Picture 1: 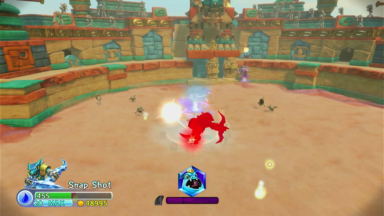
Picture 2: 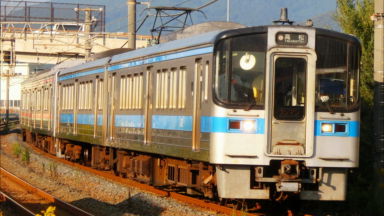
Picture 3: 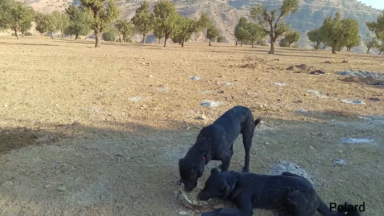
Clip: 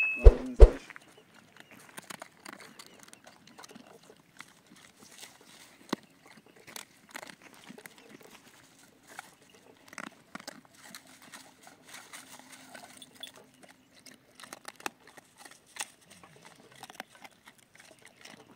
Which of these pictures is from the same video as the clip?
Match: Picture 3